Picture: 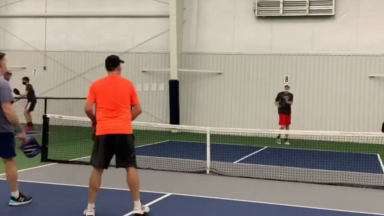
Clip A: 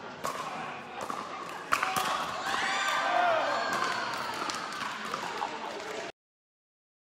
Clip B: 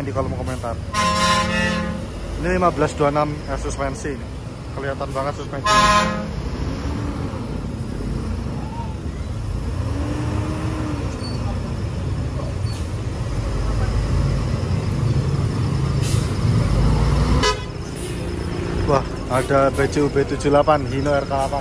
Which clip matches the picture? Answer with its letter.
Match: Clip A